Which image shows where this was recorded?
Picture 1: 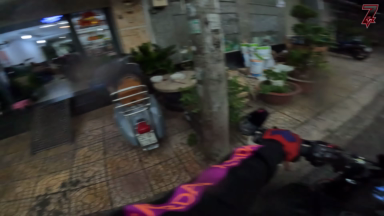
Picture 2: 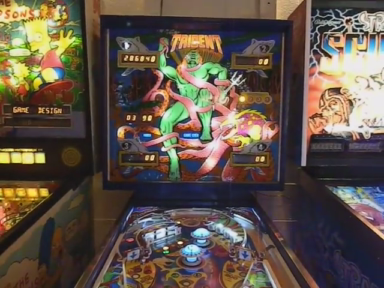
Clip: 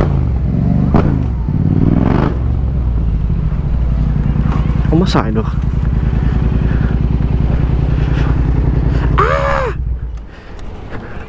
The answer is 1